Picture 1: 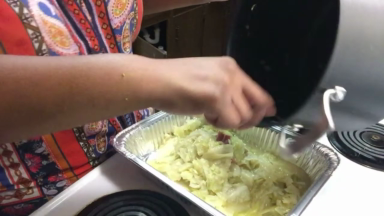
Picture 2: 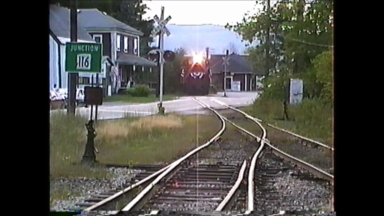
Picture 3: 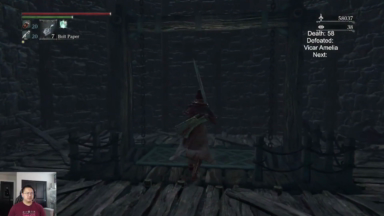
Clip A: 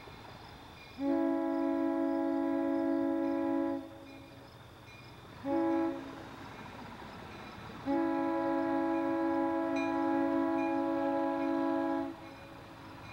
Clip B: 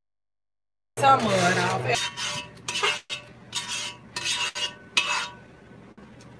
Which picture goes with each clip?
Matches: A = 2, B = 1